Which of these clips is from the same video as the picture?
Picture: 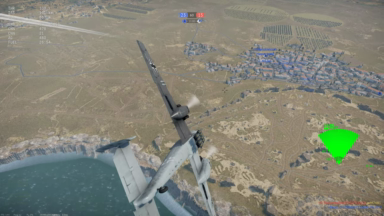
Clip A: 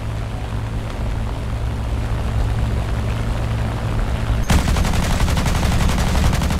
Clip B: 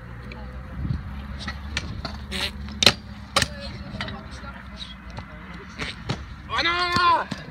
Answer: A